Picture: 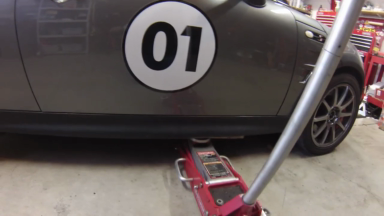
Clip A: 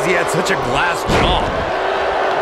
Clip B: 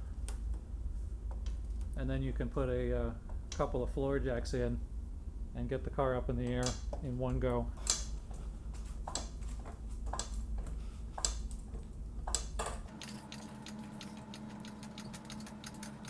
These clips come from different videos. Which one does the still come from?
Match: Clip B